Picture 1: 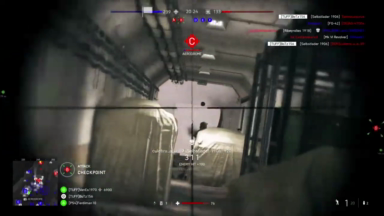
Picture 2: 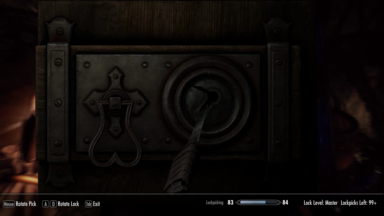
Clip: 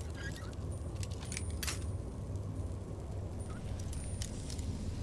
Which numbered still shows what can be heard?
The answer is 2